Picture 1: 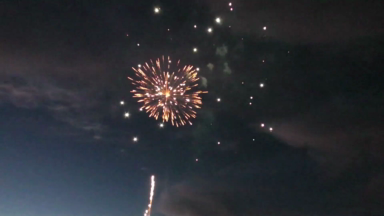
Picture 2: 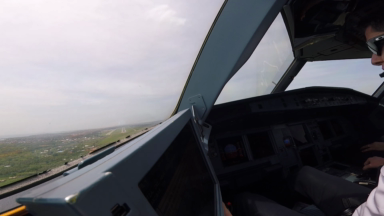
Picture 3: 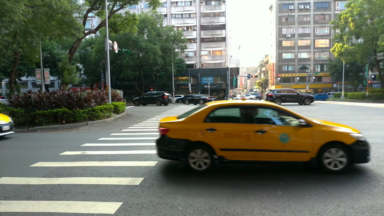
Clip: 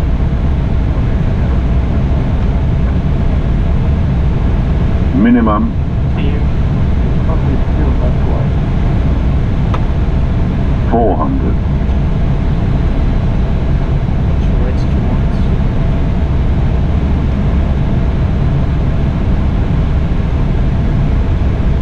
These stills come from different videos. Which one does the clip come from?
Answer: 2